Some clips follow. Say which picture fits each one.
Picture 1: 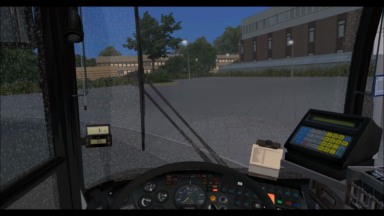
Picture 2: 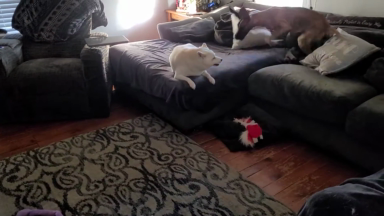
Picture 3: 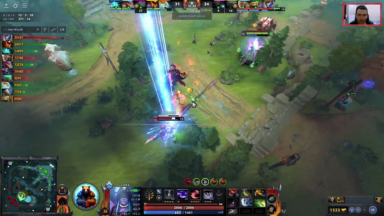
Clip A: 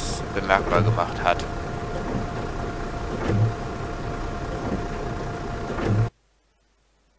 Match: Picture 1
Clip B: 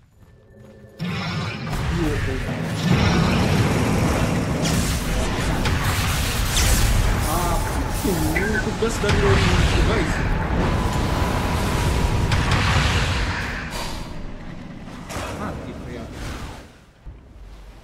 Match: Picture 3